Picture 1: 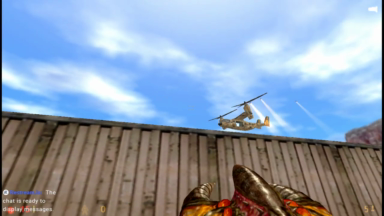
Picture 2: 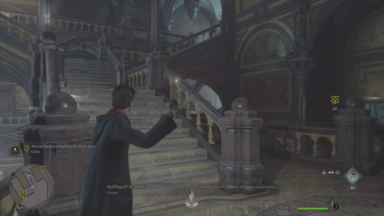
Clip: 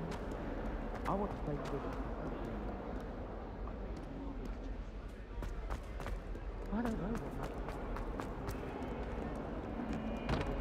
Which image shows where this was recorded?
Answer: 2